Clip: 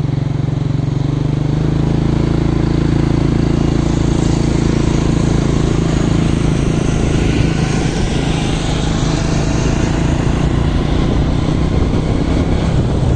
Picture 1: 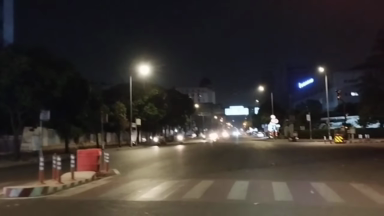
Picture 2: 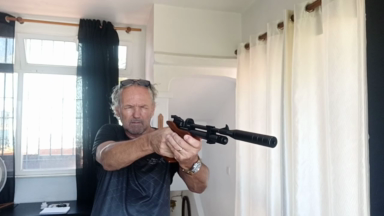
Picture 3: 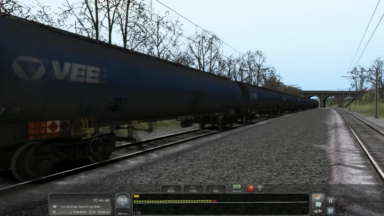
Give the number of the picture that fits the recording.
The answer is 1